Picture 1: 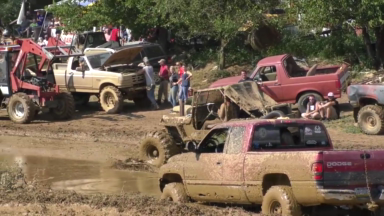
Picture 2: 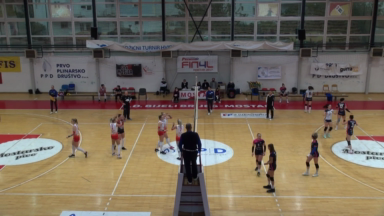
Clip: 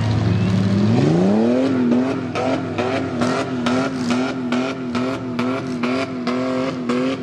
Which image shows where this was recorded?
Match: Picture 1